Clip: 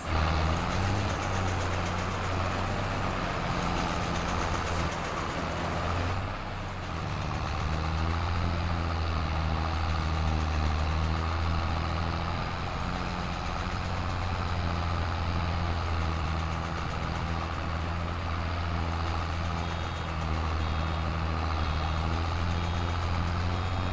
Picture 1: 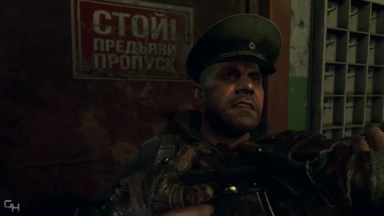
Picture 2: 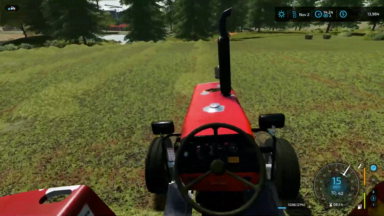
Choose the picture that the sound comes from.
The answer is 2